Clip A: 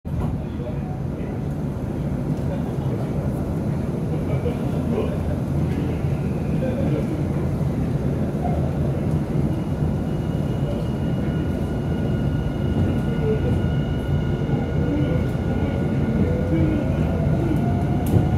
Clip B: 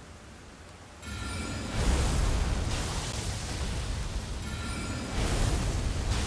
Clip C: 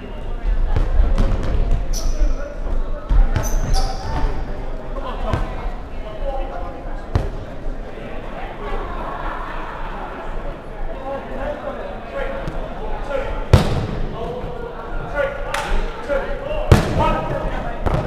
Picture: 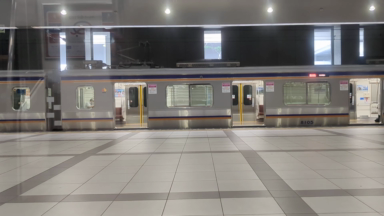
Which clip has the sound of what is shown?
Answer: A